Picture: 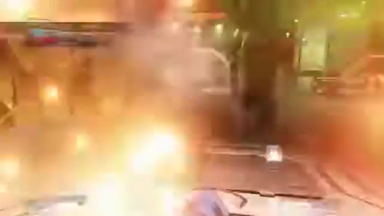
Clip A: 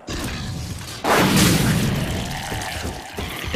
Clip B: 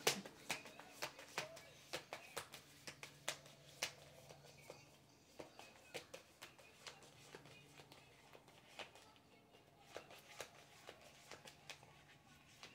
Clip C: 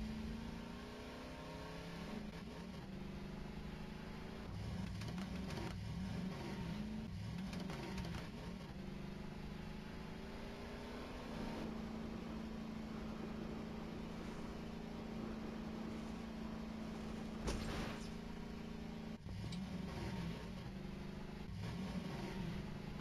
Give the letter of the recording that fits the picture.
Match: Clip A